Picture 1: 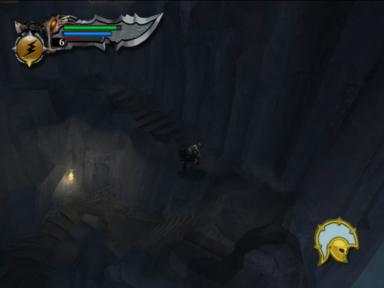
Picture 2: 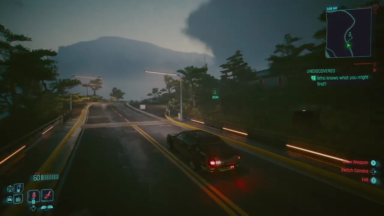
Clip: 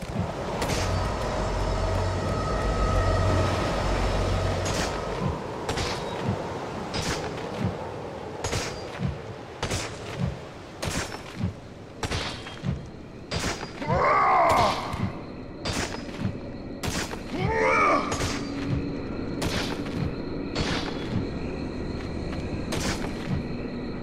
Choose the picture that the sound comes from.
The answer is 1